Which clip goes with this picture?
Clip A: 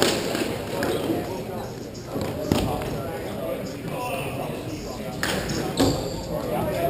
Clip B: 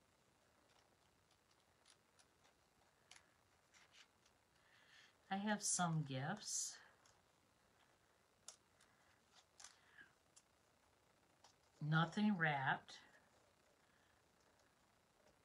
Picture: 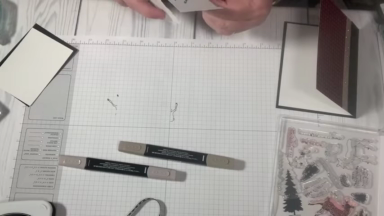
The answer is B